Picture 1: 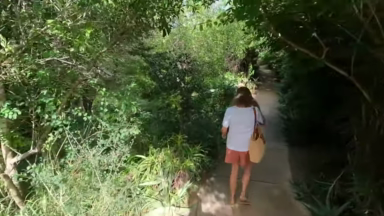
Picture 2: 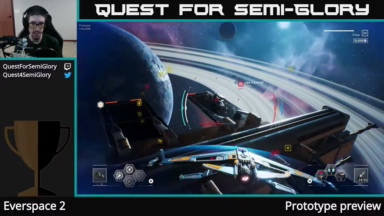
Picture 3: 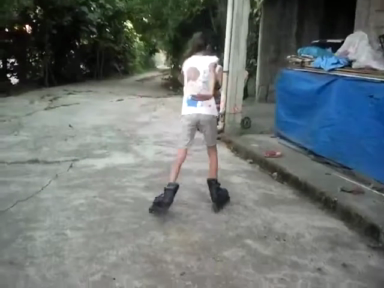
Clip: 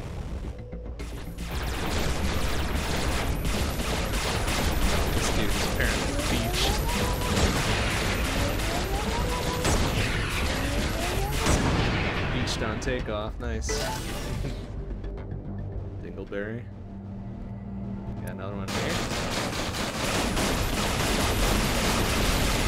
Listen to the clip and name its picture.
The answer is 2